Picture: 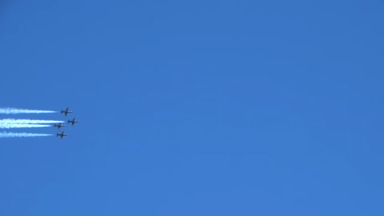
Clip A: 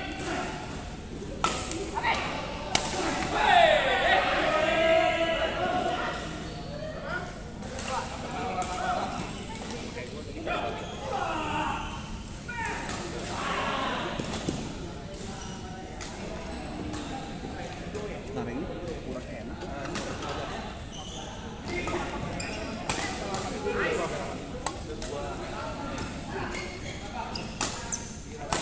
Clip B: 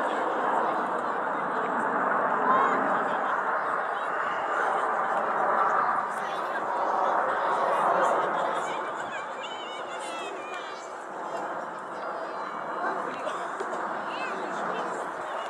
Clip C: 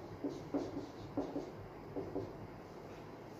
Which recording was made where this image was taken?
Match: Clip B